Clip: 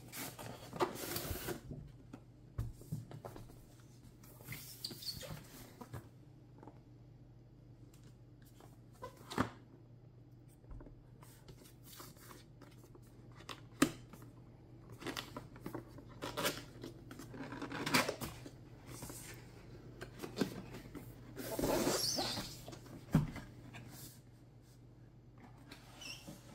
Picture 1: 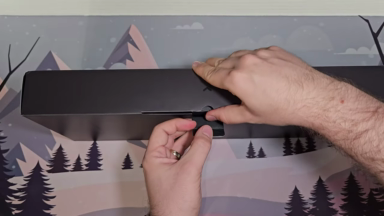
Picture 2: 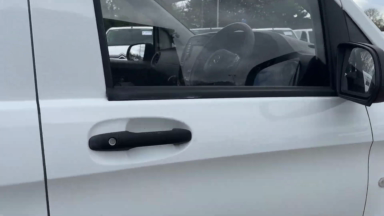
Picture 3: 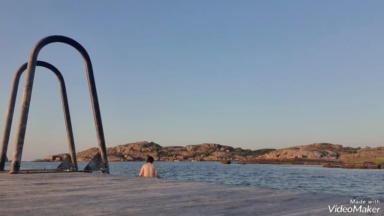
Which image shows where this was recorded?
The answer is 1